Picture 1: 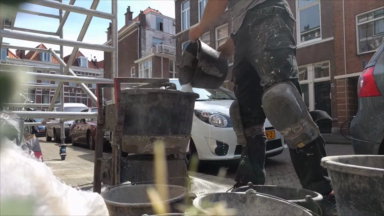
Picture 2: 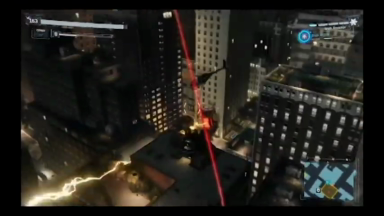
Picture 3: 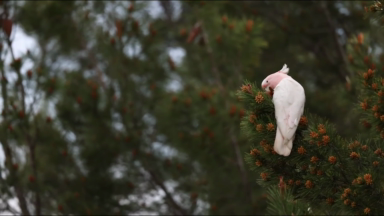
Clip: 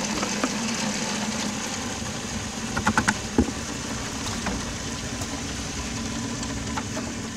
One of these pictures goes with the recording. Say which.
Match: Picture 1